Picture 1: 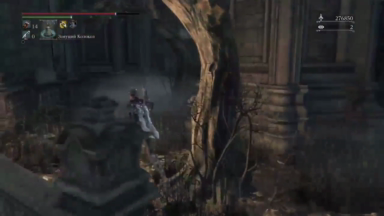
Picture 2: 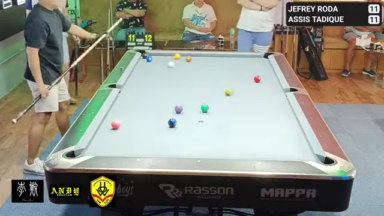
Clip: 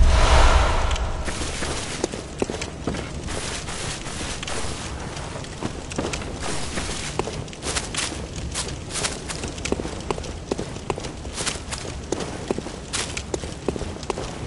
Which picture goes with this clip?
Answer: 1